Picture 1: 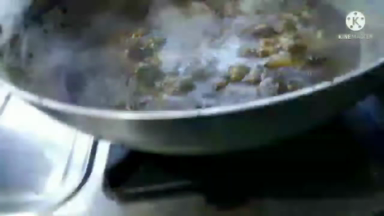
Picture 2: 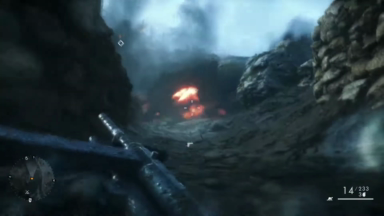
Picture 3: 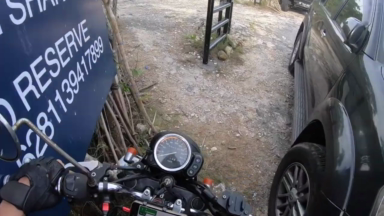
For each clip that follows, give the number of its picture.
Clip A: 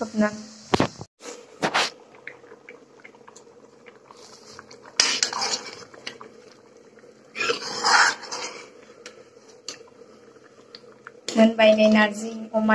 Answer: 1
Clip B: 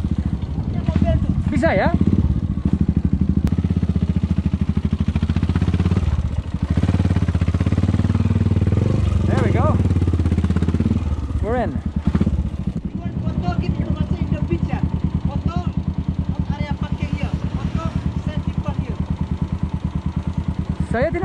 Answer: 3